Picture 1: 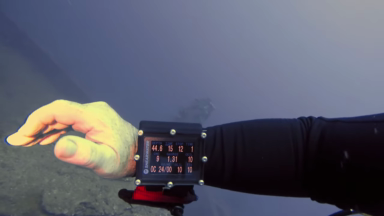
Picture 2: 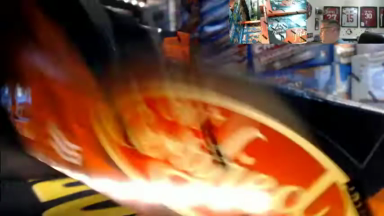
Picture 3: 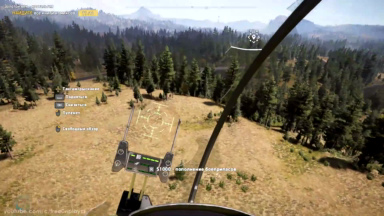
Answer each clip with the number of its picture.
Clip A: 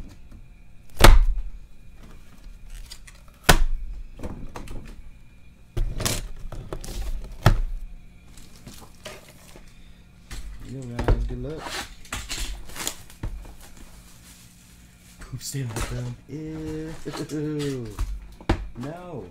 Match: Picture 2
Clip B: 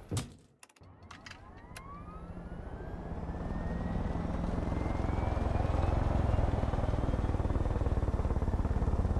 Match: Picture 3